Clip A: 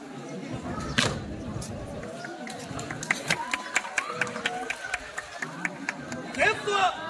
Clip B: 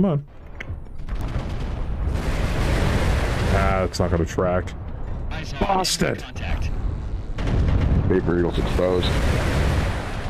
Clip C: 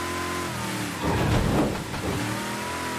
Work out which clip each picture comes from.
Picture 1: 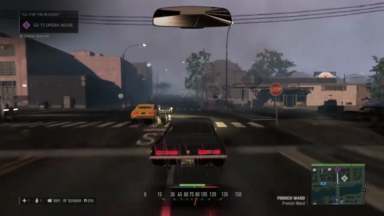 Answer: C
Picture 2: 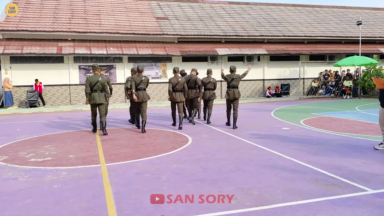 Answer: A